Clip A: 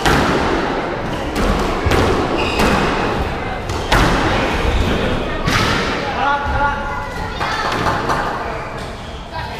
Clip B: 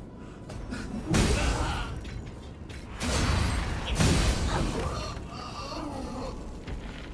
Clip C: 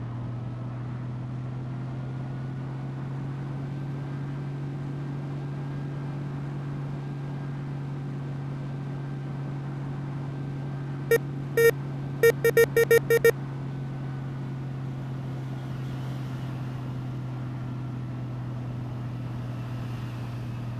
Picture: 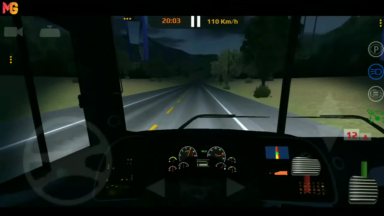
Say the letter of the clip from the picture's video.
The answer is C